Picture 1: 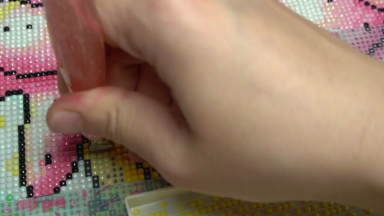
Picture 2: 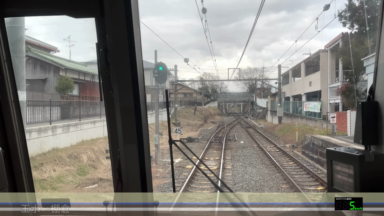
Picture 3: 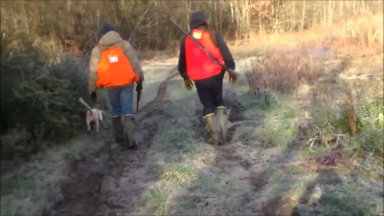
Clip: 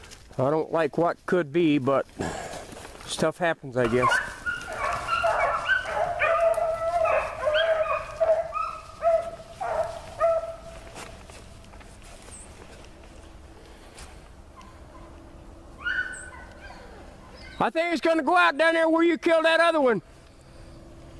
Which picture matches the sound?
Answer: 3